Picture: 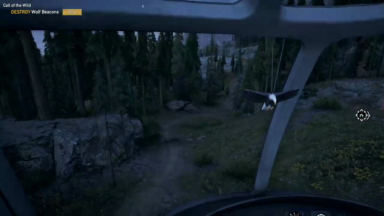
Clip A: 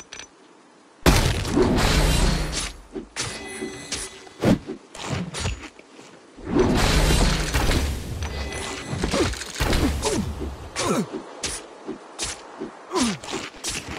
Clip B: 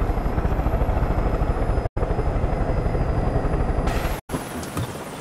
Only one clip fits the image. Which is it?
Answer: B